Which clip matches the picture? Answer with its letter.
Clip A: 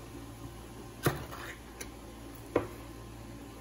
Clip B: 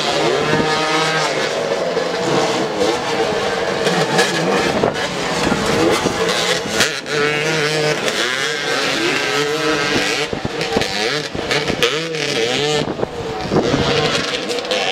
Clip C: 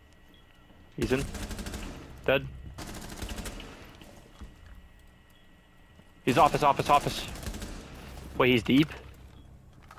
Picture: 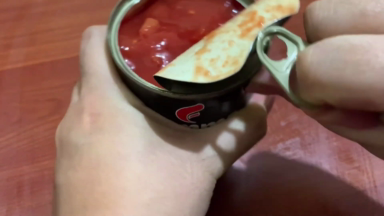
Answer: A